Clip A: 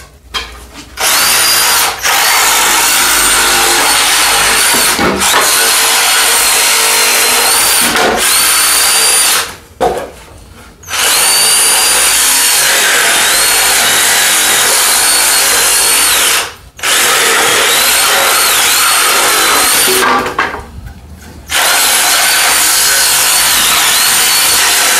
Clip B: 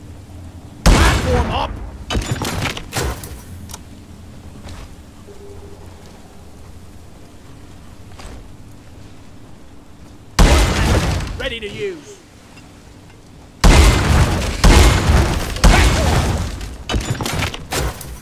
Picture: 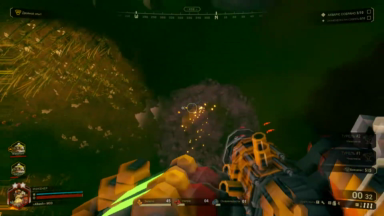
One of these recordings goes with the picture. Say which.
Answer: B